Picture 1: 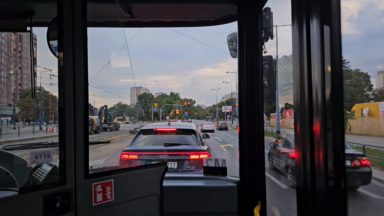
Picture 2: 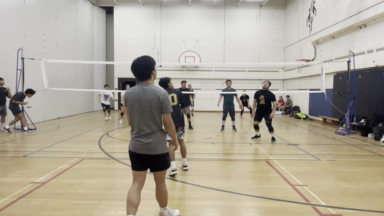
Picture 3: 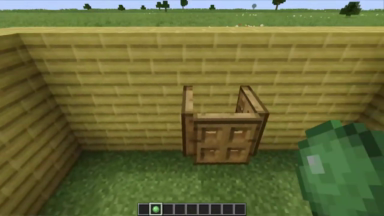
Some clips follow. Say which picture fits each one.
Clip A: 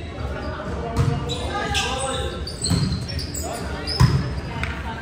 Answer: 2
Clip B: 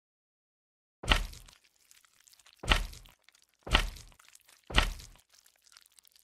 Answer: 3